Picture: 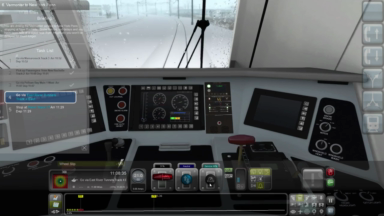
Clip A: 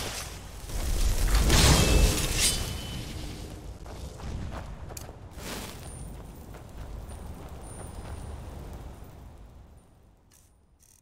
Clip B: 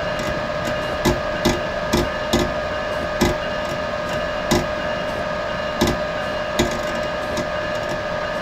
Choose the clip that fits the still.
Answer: B